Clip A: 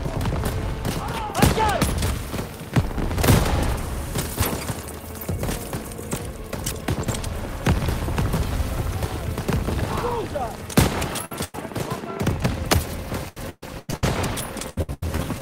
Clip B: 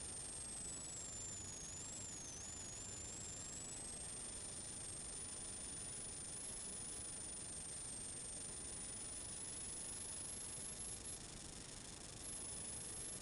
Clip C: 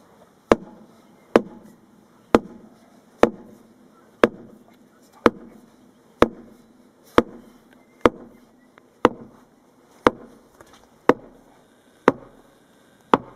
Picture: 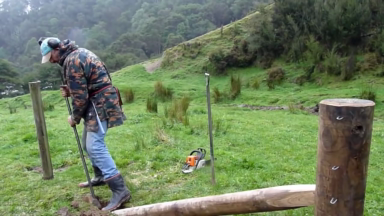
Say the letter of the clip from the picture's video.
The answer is C